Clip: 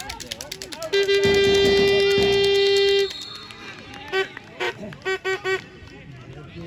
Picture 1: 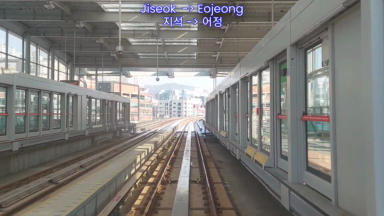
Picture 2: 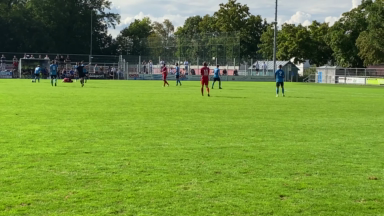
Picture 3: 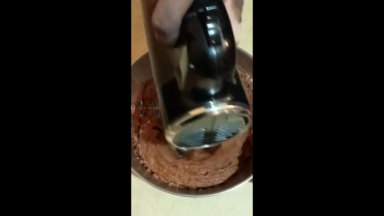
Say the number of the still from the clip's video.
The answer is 2